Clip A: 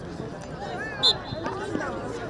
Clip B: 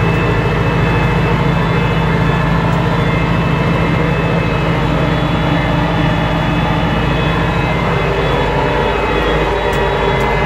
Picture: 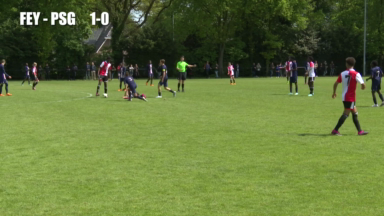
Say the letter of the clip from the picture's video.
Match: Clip A